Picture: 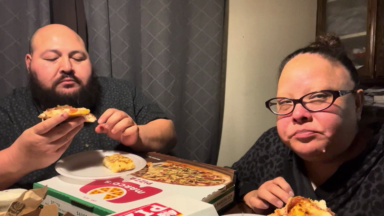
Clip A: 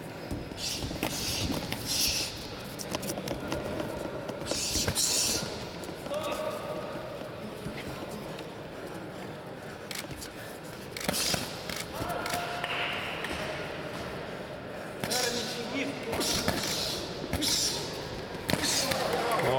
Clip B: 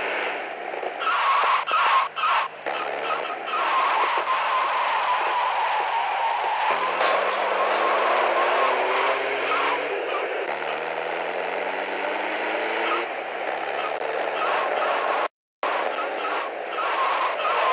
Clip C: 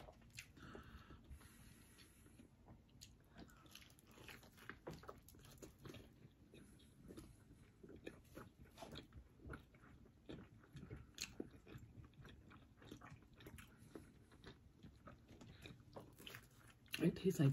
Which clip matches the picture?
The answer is C